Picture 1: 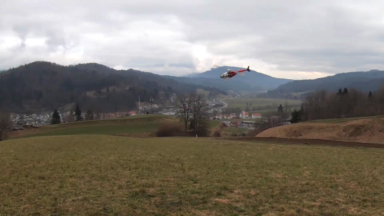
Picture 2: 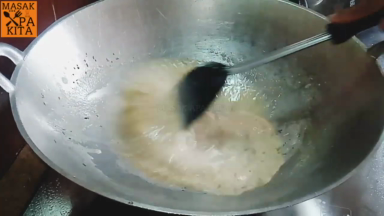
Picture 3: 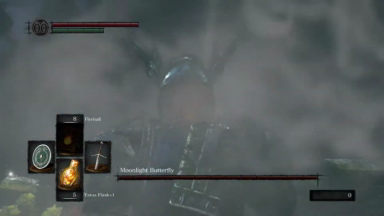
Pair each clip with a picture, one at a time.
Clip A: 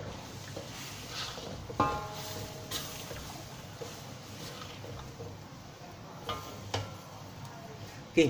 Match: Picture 2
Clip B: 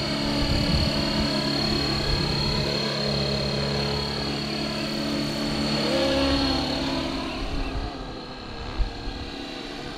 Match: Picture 1